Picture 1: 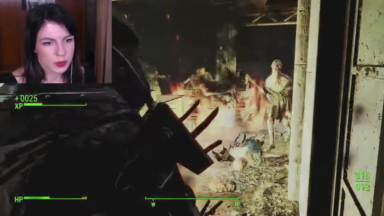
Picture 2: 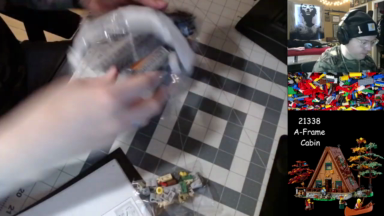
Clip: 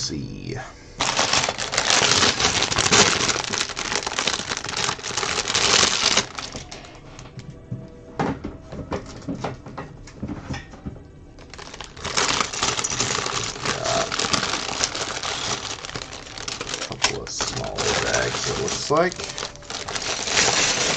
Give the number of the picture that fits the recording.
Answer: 2